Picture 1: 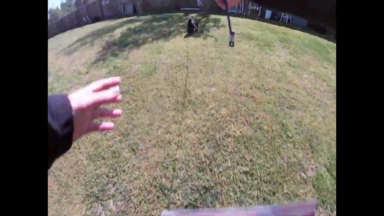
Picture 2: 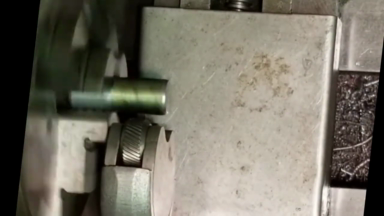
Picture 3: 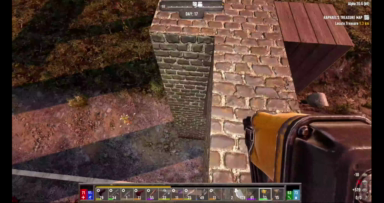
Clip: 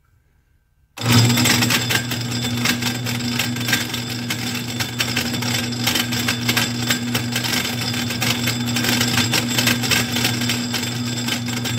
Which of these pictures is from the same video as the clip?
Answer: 2